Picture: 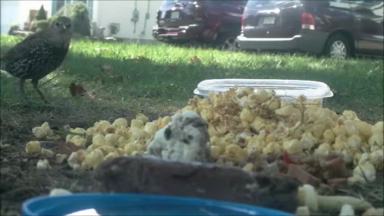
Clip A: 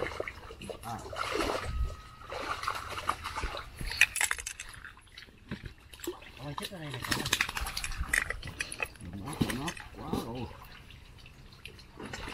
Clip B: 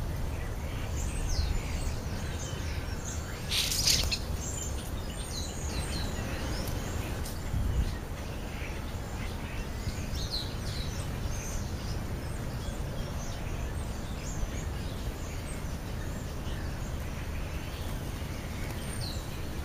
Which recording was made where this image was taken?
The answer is B